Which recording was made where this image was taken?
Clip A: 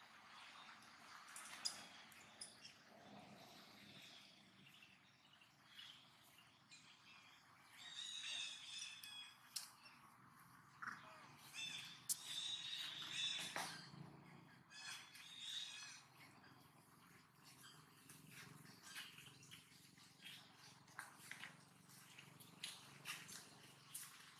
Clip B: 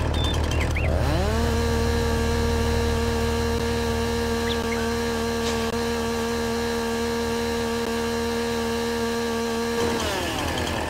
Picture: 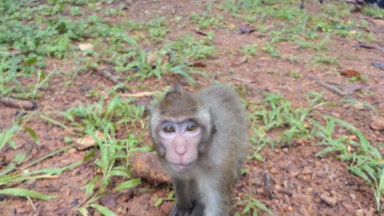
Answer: A